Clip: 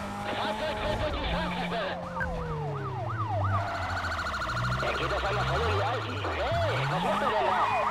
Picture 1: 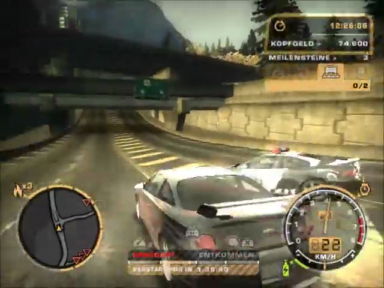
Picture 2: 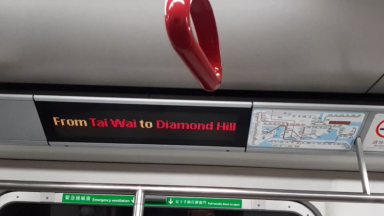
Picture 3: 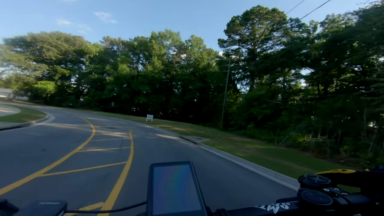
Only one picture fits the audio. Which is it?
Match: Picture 1